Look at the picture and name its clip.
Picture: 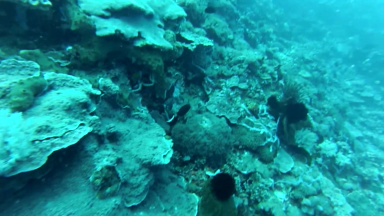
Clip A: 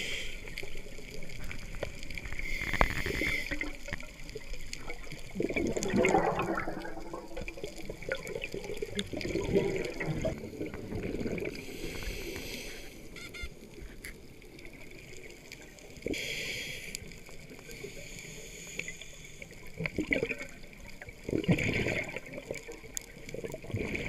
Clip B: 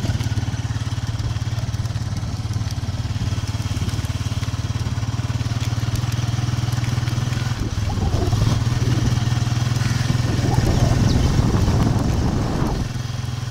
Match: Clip A